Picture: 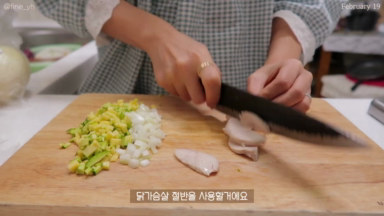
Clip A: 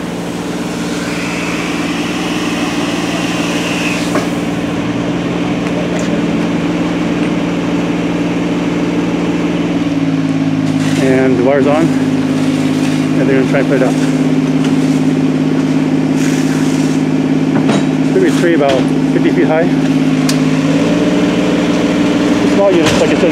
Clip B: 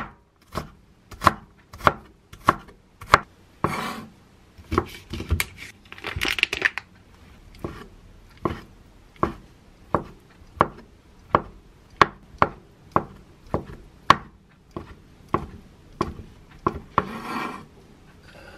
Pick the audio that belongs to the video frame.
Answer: B